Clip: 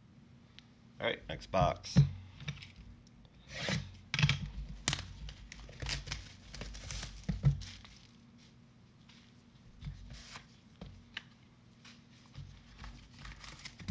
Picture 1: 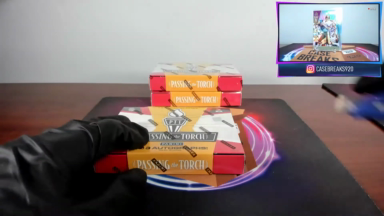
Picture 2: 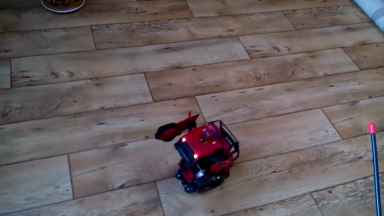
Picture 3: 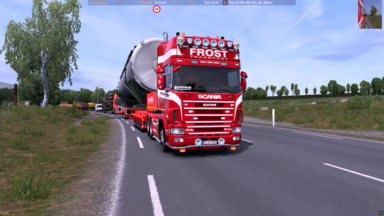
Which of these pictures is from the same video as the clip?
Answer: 1